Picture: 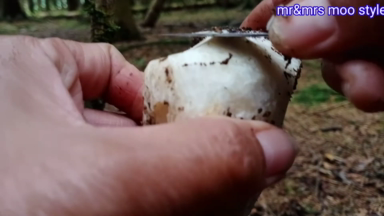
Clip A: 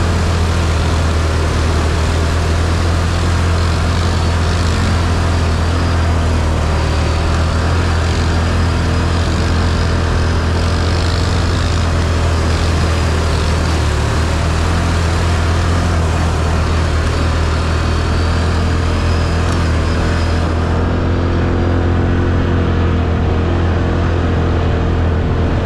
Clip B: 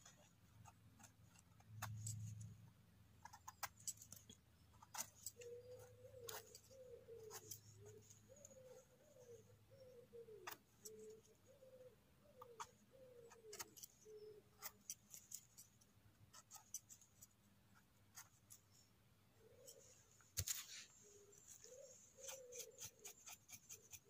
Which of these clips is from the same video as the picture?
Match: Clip B